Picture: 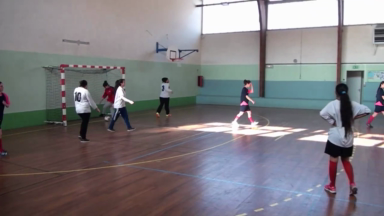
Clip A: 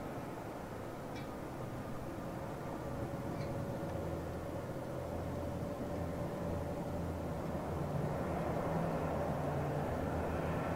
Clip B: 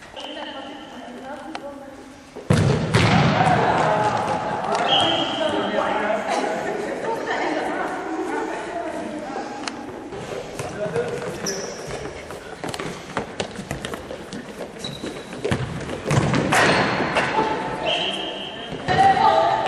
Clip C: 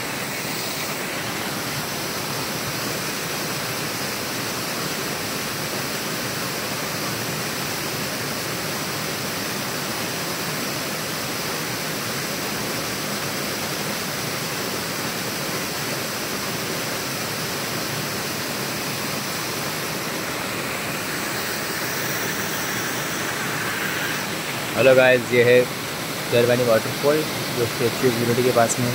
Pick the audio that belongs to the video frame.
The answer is B